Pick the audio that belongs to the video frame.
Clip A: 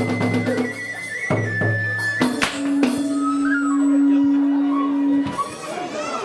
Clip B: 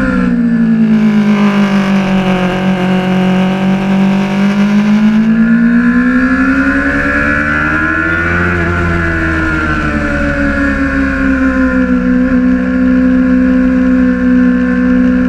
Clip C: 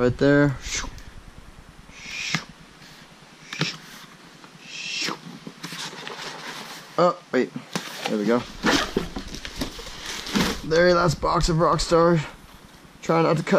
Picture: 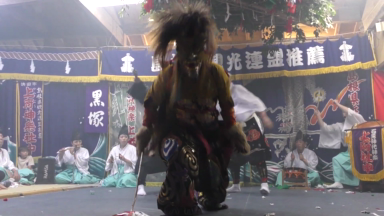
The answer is A